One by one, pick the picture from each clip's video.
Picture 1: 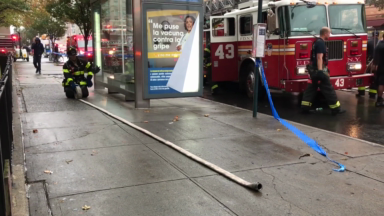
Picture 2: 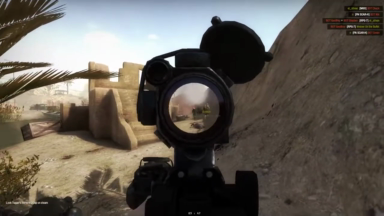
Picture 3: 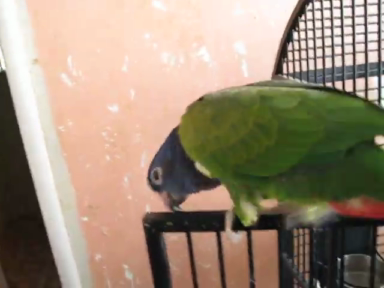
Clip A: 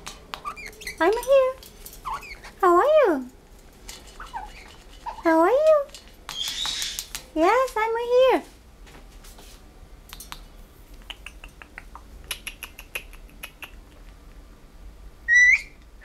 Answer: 3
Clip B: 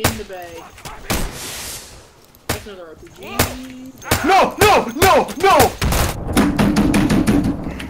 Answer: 2